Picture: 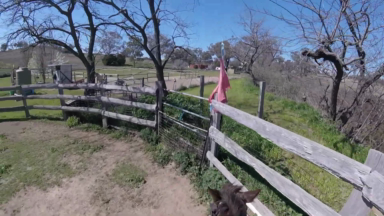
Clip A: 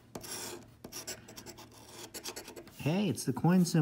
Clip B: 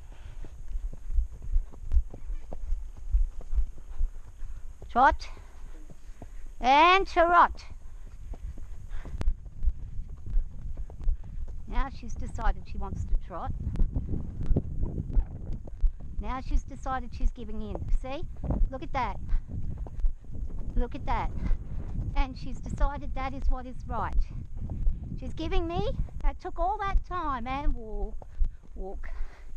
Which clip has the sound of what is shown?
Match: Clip B